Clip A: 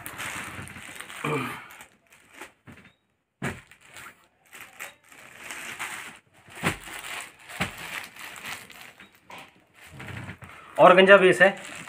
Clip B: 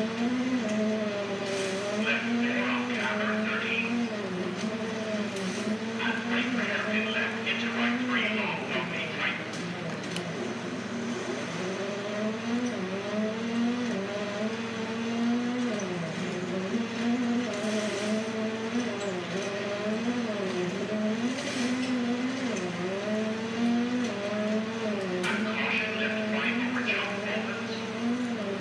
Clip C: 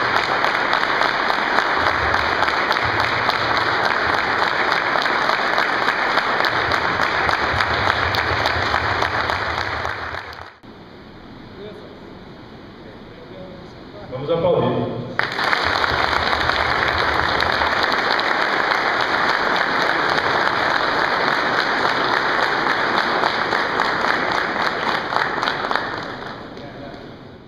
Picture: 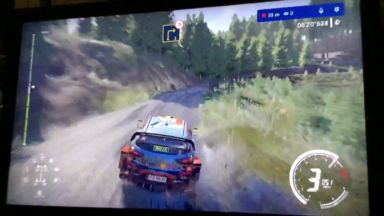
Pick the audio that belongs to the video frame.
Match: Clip B